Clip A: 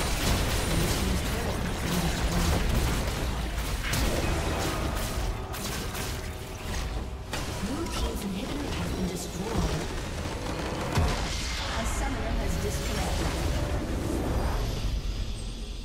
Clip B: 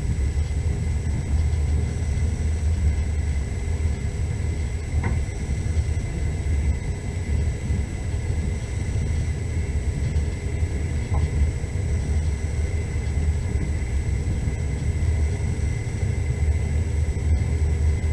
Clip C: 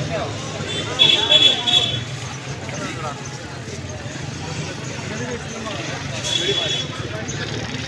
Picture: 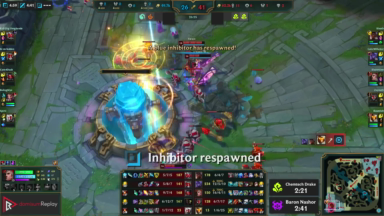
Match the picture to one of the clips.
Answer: A